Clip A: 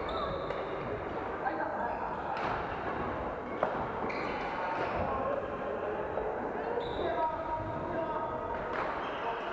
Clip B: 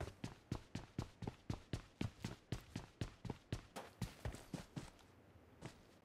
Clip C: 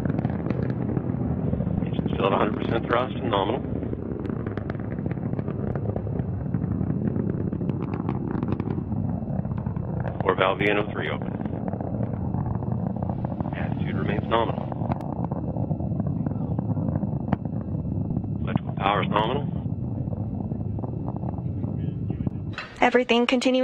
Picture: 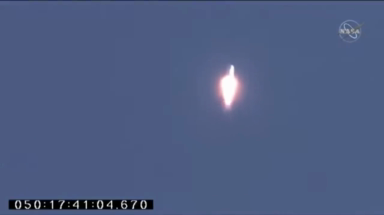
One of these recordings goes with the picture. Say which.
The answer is C